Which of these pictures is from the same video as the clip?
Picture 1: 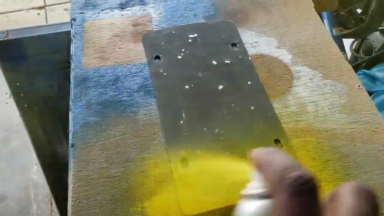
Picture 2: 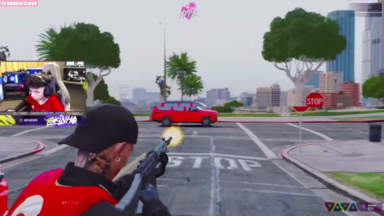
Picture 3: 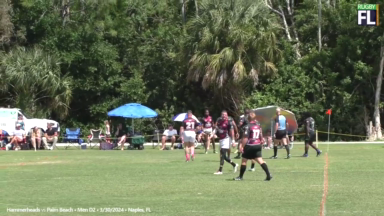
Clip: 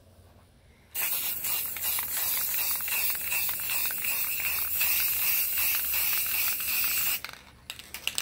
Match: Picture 1